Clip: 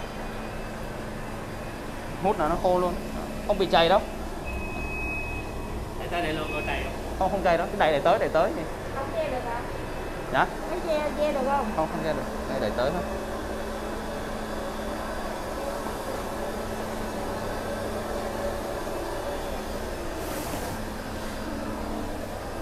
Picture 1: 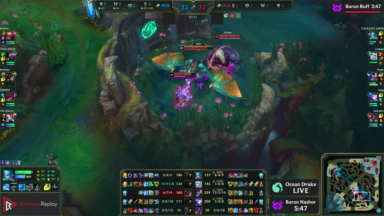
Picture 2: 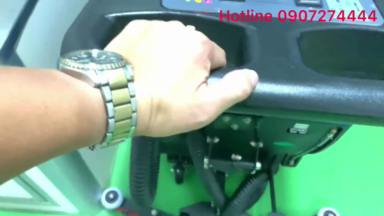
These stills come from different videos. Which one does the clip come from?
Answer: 2